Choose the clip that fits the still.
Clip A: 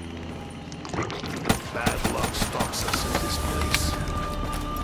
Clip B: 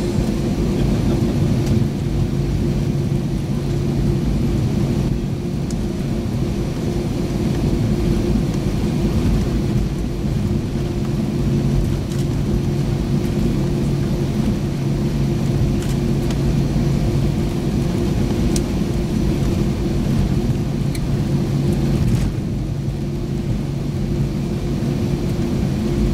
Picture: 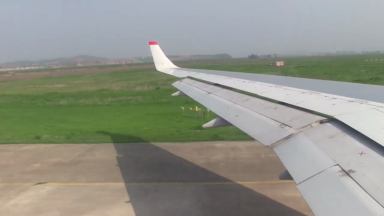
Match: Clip B